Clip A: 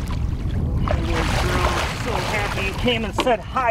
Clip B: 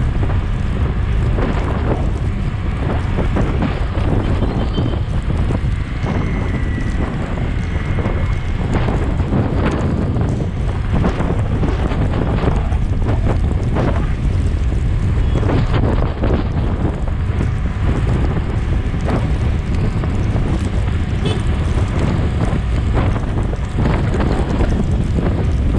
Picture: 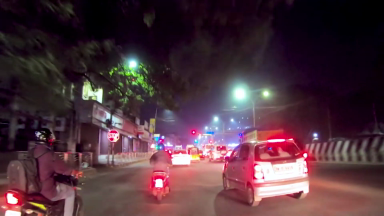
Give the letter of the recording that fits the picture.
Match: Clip B